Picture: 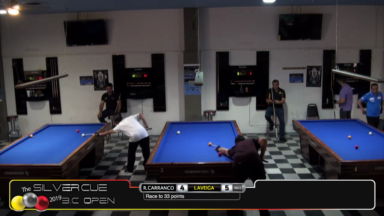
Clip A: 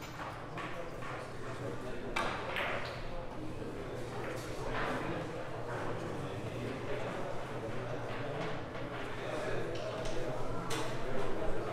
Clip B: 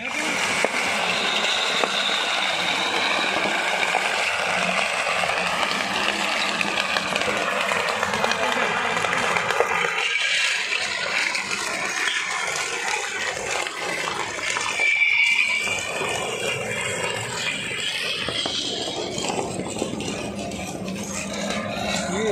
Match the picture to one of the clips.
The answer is A